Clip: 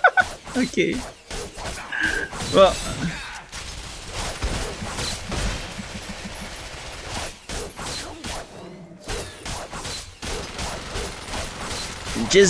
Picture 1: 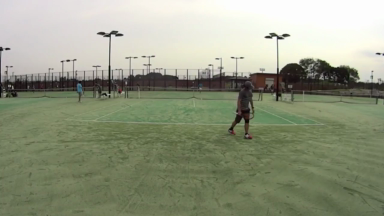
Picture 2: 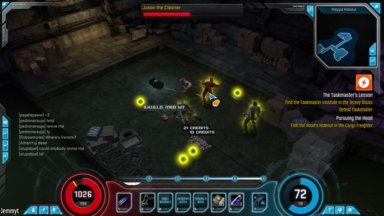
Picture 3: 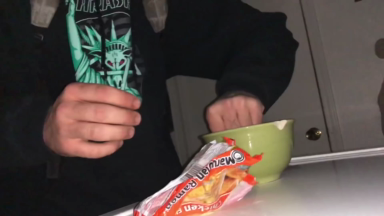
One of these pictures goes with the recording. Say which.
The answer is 2